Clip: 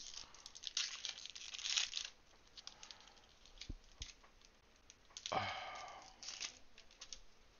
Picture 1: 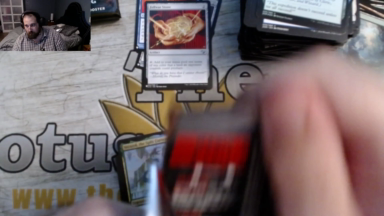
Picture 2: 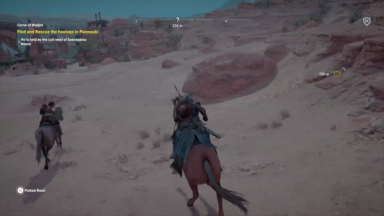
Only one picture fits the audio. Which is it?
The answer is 1